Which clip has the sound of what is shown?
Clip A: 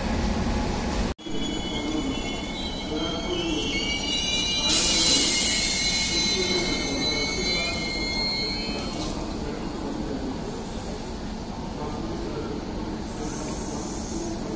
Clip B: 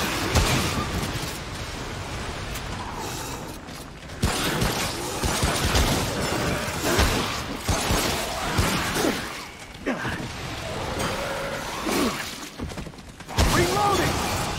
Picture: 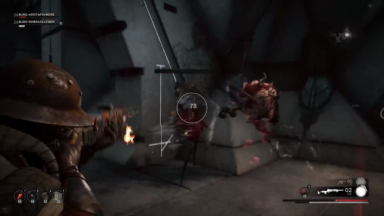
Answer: B